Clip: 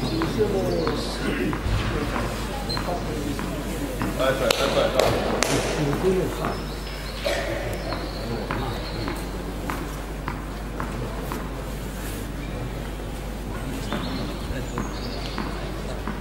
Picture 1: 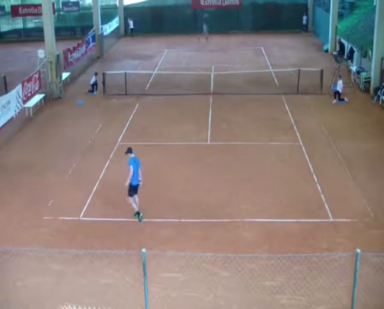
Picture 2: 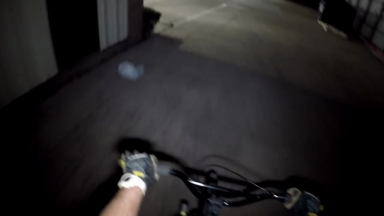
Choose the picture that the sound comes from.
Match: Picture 1